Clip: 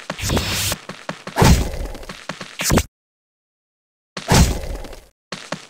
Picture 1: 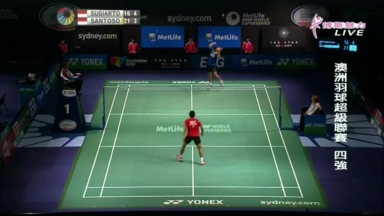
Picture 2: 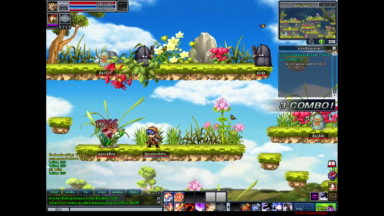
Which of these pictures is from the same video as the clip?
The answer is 2